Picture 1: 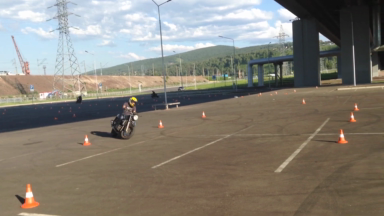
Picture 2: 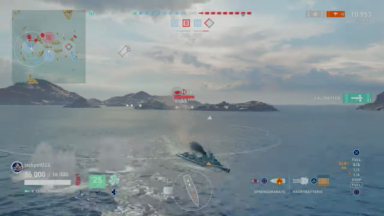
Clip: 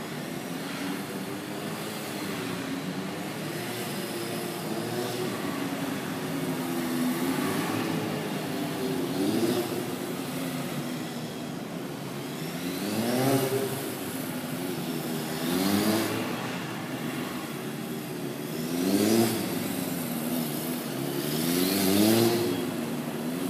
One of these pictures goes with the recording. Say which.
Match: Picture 1